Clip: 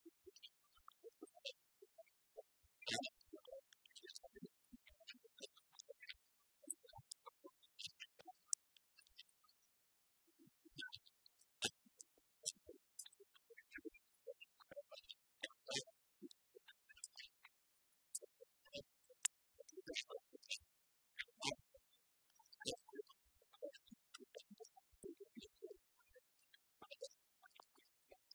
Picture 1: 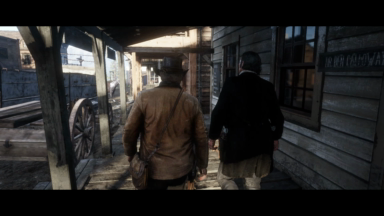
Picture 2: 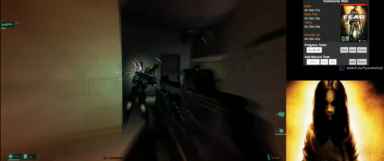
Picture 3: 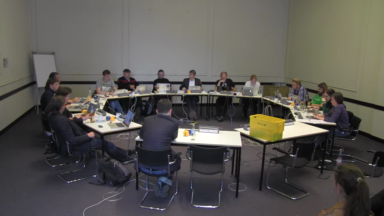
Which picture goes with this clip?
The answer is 3